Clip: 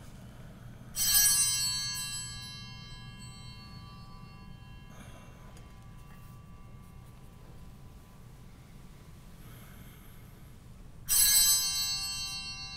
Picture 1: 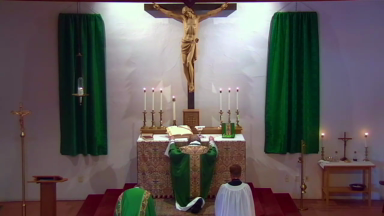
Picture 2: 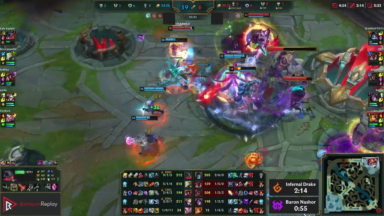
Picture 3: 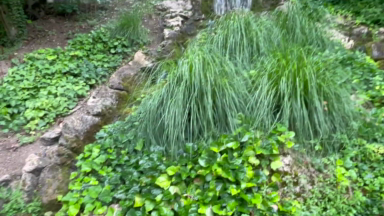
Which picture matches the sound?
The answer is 1